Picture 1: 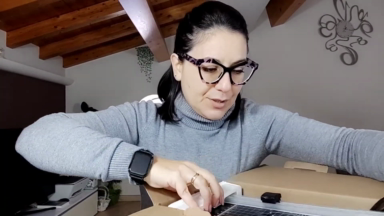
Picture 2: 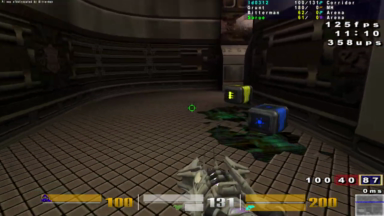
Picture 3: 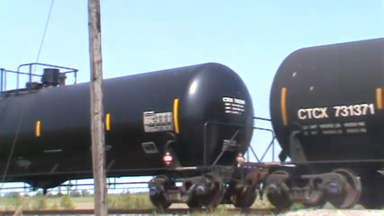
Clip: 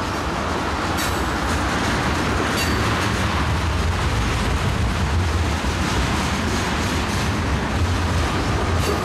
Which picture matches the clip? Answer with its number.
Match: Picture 3